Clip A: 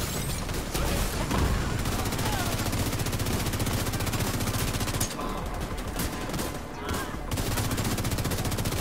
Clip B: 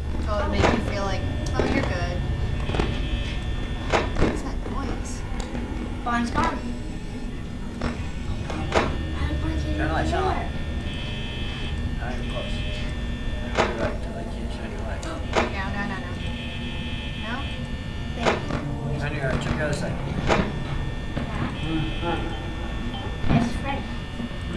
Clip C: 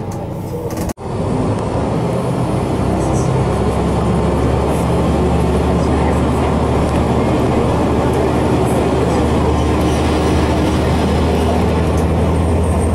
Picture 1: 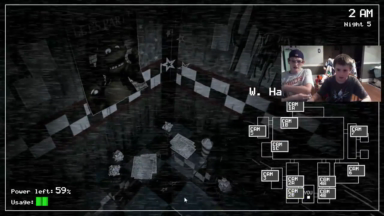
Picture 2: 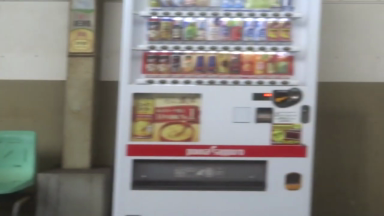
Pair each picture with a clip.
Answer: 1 B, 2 C